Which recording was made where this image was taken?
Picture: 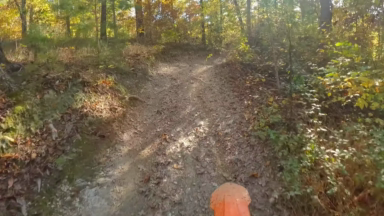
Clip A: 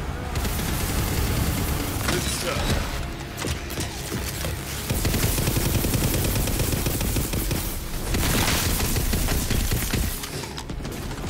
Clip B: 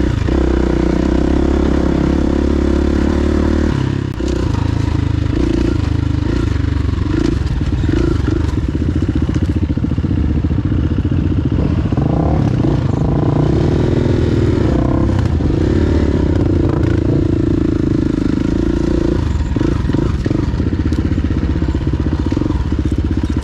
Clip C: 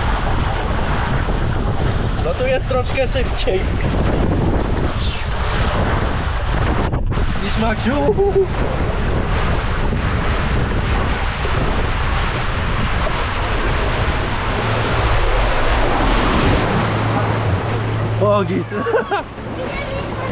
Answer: B